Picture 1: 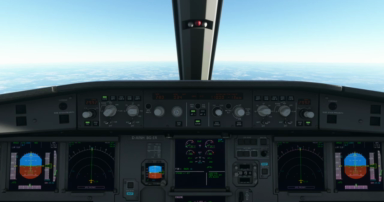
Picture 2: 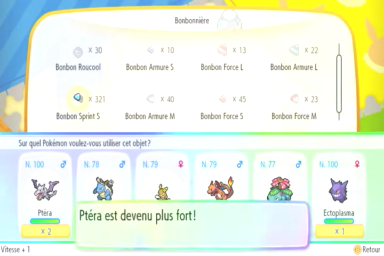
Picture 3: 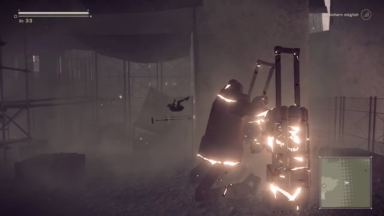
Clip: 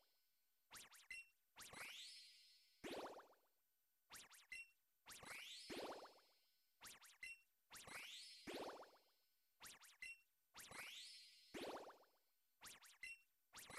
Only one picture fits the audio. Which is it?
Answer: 2